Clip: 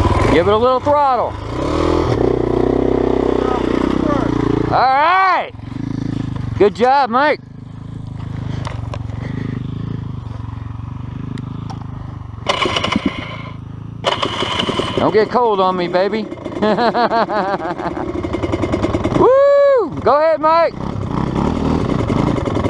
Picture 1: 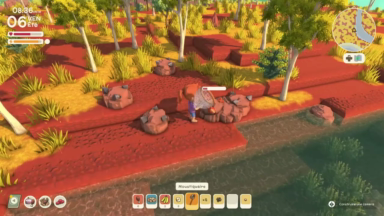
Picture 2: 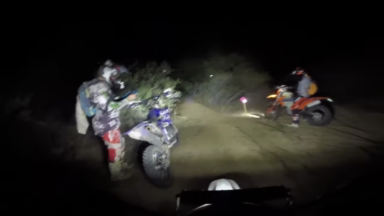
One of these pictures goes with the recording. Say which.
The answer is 2